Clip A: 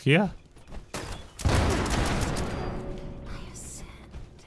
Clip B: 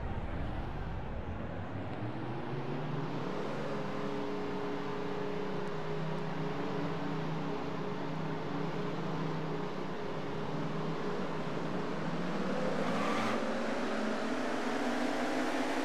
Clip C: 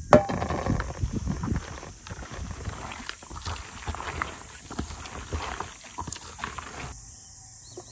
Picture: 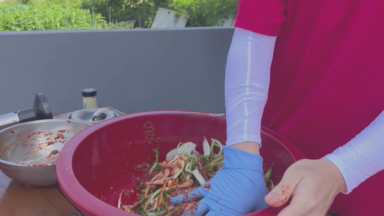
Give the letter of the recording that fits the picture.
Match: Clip C